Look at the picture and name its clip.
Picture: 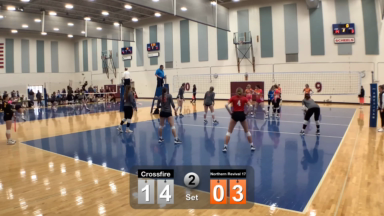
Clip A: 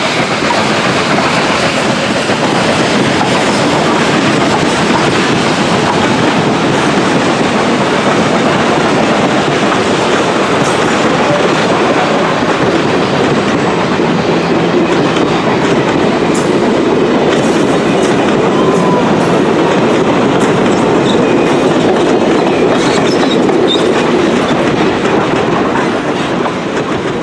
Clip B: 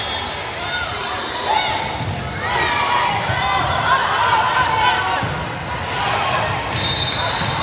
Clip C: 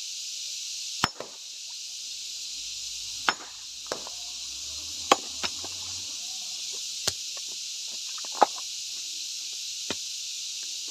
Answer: B